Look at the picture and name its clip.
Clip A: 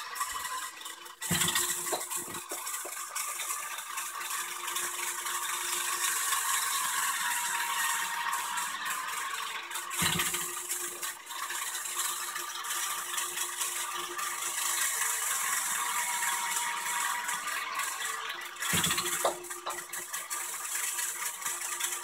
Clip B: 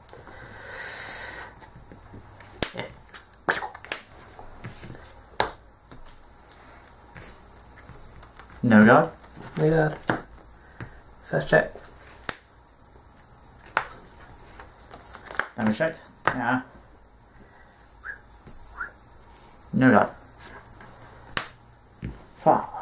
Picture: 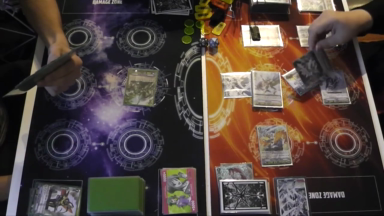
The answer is B